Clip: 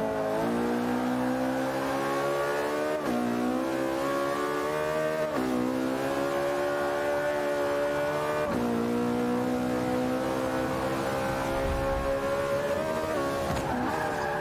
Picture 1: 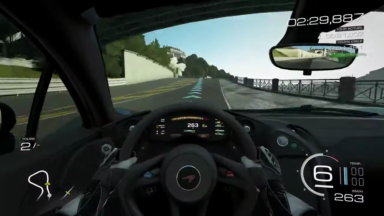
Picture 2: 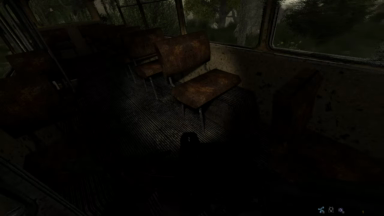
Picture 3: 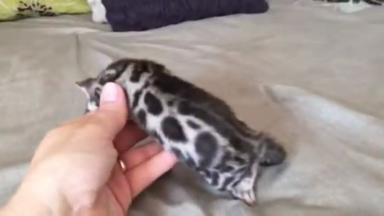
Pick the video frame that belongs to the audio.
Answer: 1